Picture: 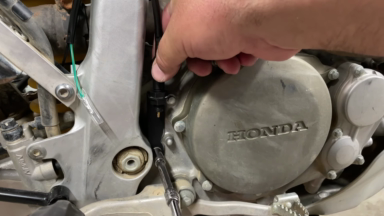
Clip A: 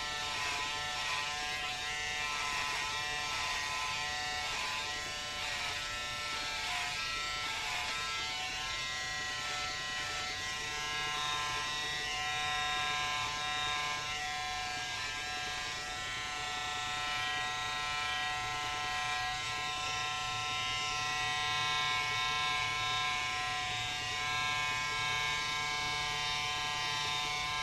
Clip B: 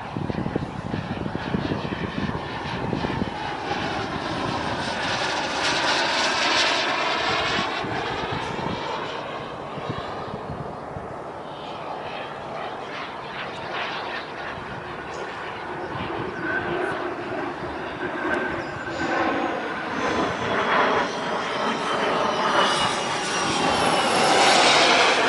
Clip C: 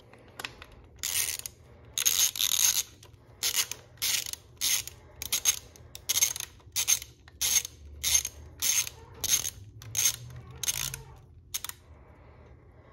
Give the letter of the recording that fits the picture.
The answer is C